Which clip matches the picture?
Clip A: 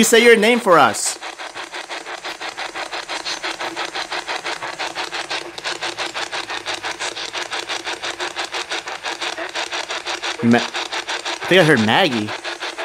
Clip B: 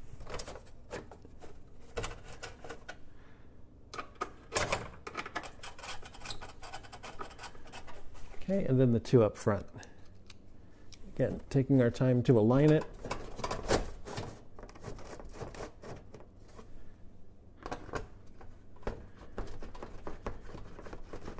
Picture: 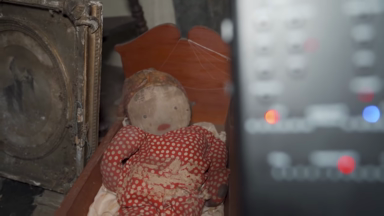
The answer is A